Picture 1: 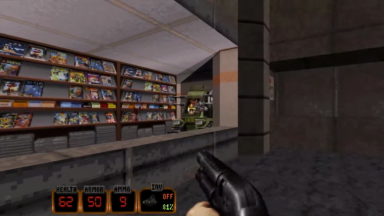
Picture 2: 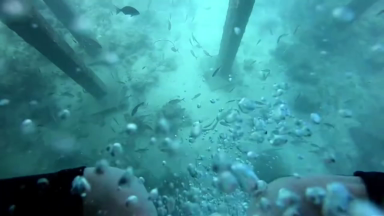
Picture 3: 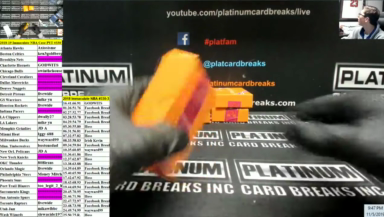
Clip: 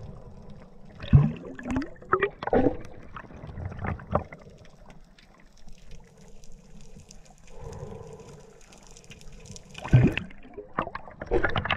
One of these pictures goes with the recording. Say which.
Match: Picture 2